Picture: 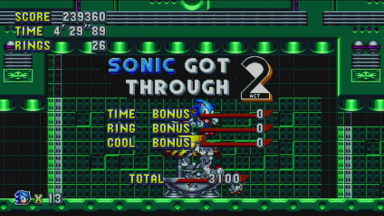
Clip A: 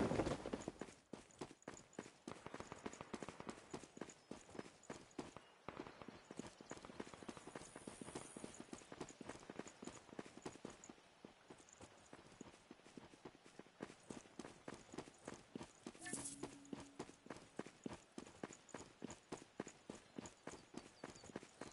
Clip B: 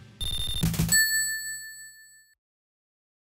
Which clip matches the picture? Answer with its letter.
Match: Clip B